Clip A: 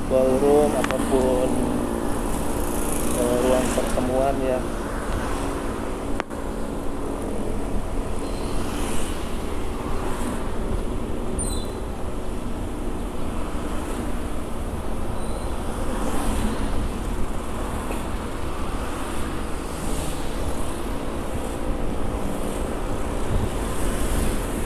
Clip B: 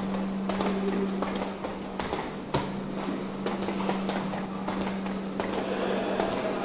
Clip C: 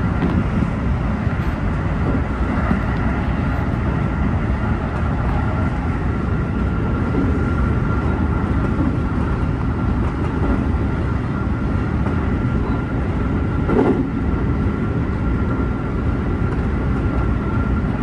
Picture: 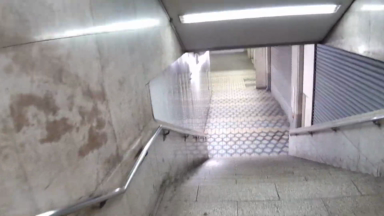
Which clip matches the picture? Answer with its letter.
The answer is B